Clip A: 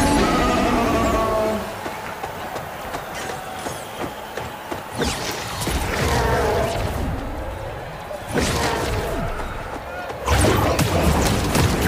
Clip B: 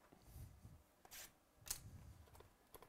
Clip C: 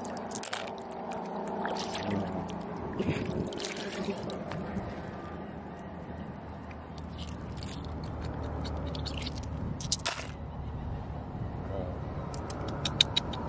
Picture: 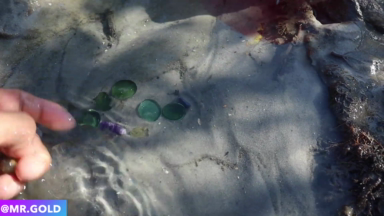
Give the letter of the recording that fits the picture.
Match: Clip C